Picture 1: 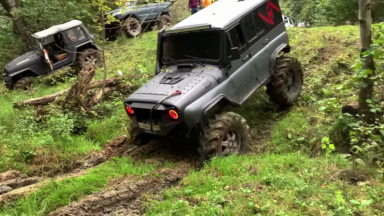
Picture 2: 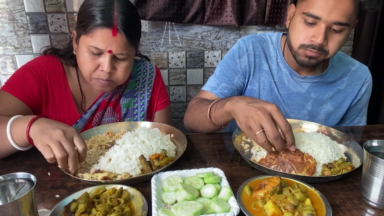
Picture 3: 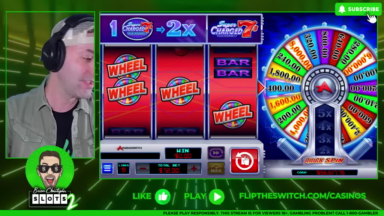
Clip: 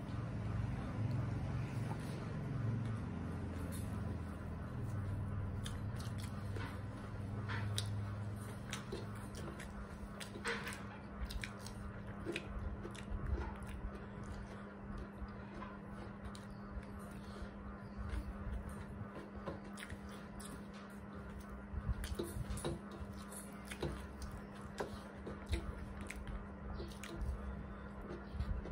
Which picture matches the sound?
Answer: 2